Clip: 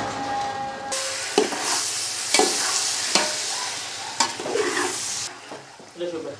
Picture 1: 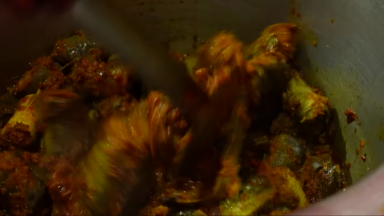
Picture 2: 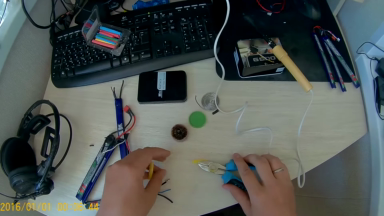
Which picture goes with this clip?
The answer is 1